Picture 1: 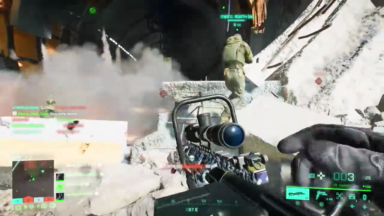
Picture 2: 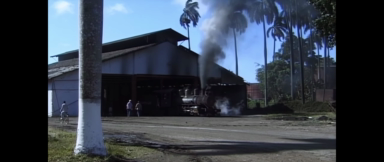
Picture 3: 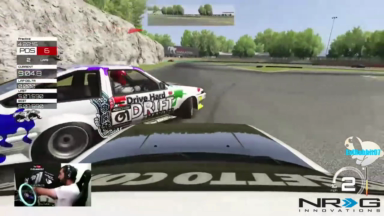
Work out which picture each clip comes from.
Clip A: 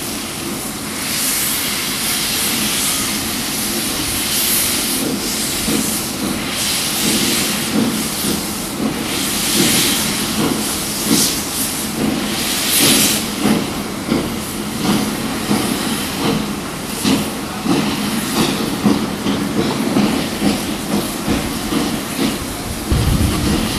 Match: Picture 2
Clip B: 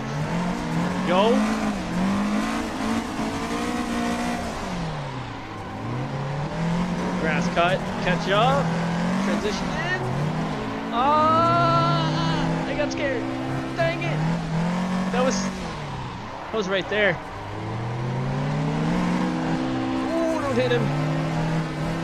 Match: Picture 3